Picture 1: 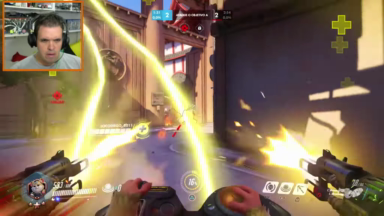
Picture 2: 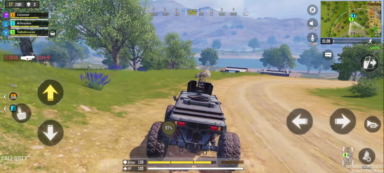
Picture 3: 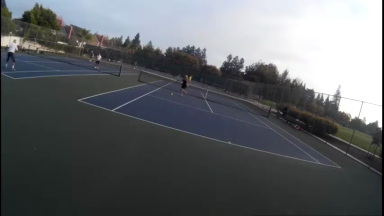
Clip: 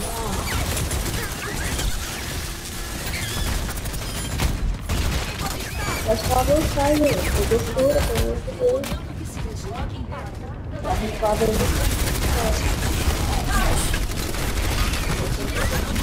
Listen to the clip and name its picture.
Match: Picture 1